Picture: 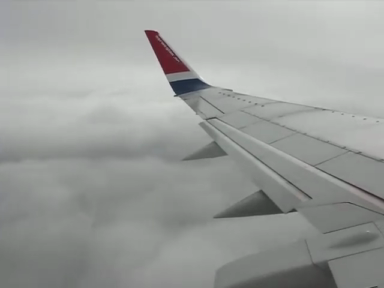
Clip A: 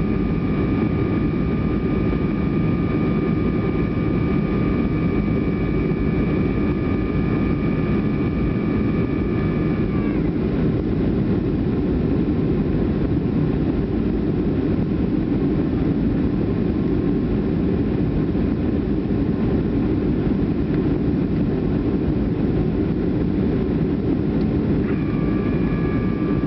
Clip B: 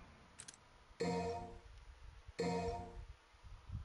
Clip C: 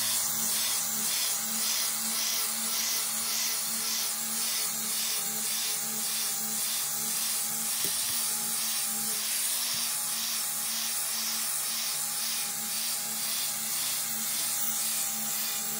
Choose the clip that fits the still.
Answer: A